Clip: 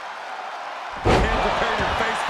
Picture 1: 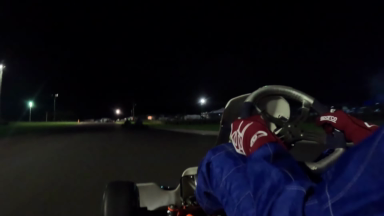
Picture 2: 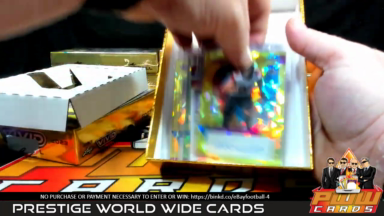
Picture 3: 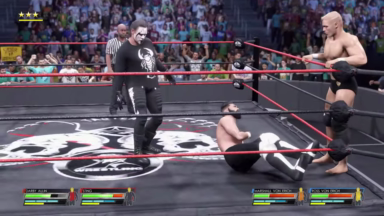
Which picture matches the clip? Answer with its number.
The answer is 3